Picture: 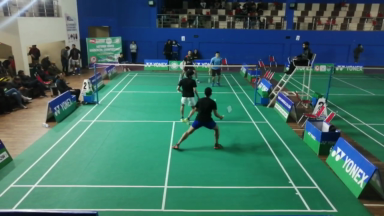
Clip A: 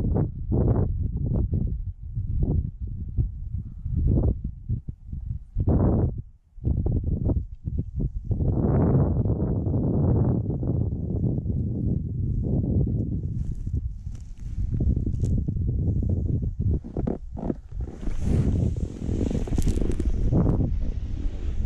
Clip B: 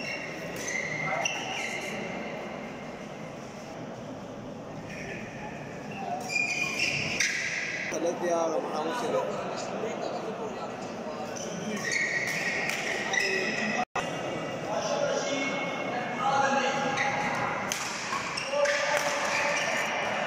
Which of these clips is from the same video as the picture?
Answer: B